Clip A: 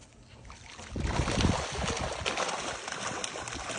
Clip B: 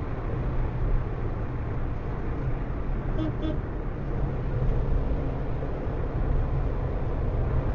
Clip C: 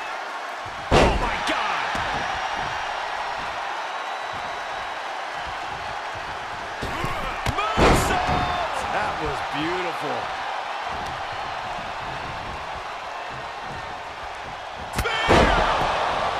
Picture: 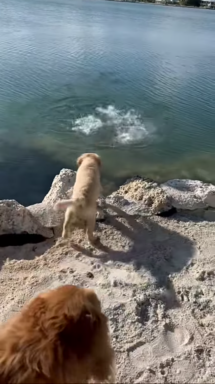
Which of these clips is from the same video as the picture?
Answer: A